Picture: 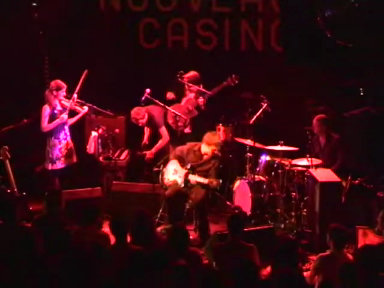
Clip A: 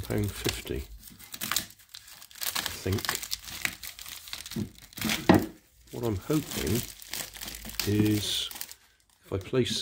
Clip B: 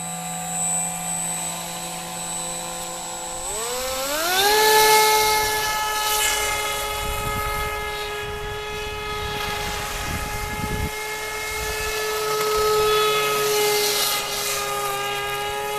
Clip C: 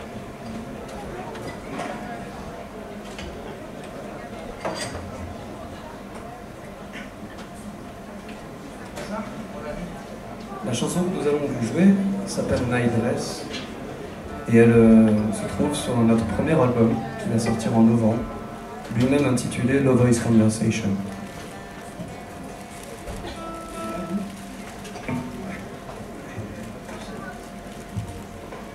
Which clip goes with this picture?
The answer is C